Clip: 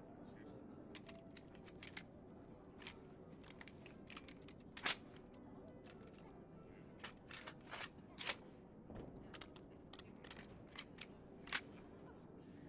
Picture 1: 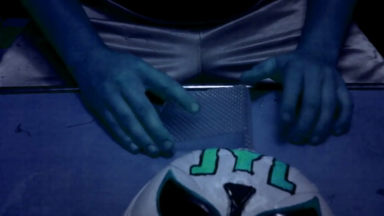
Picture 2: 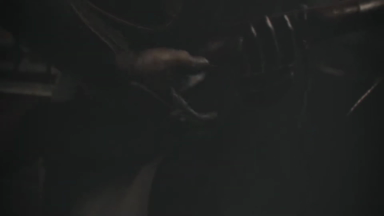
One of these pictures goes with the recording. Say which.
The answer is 2